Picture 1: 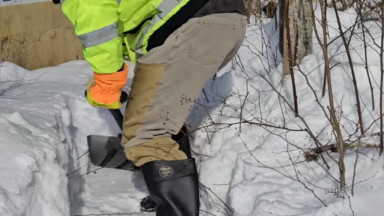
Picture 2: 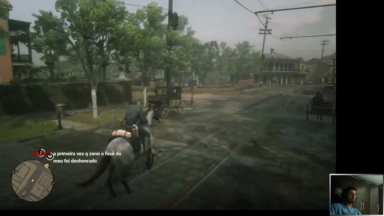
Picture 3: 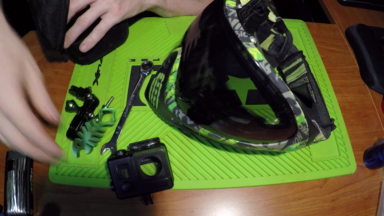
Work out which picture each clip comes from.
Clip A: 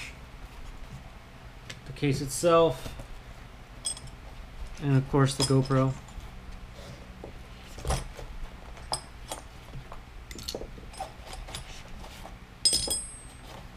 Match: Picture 3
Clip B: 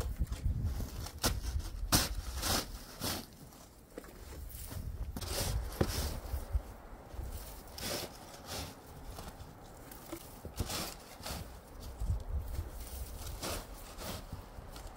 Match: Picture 1